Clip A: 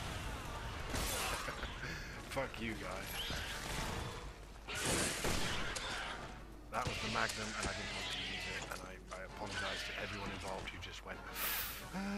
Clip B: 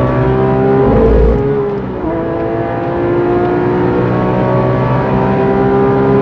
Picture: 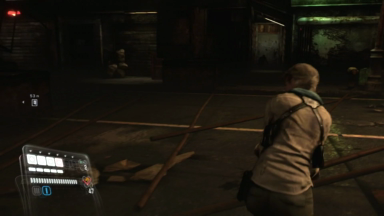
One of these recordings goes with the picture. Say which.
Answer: A